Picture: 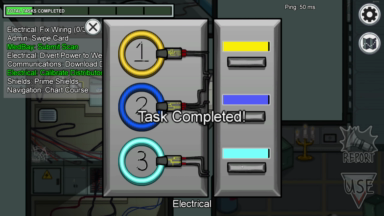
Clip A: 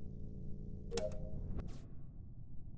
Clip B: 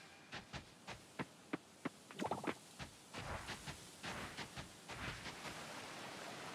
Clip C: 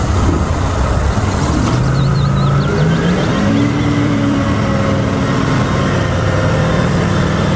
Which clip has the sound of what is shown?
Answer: A